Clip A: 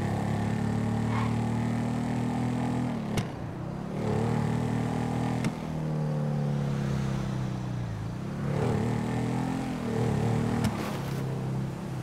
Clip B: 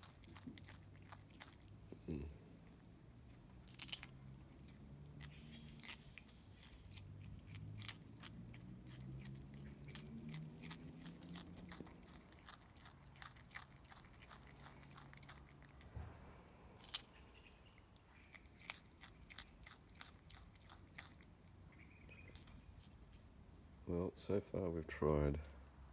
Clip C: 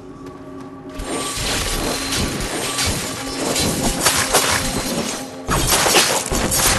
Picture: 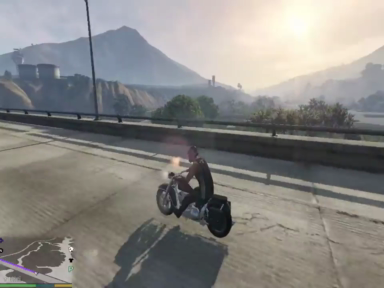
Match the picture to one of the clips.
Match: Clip A